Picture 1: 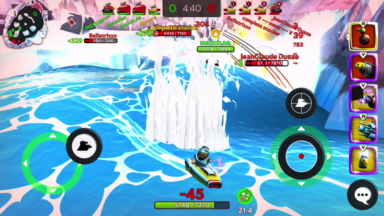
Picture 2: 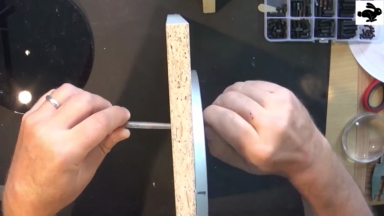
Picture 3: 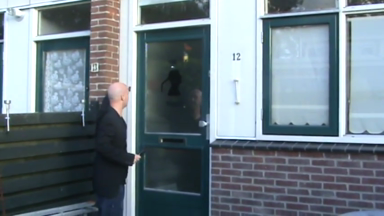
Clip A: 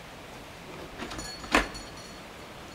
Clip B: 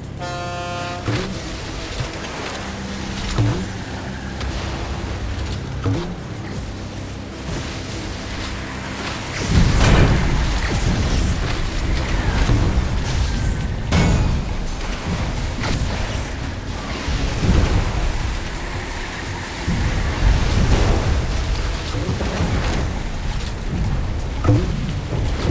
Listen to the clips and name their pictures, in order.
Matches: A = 3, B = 1